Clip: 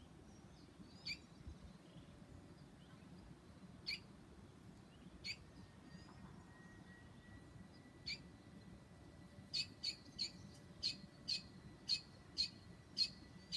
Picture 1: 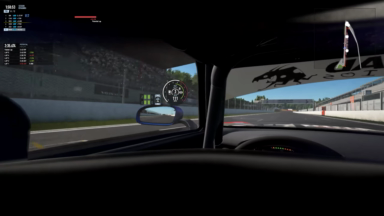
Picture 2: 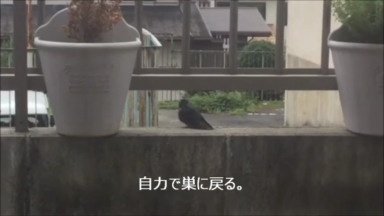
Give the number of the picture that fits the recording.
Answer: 2